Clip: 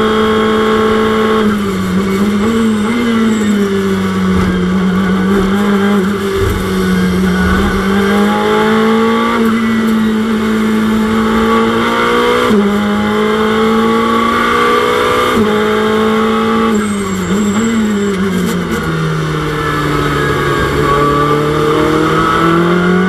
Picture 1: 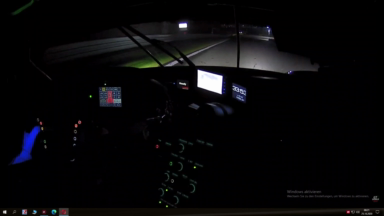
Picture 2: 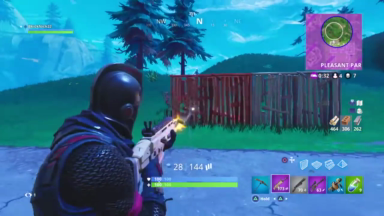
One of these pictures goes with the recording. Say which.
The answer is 1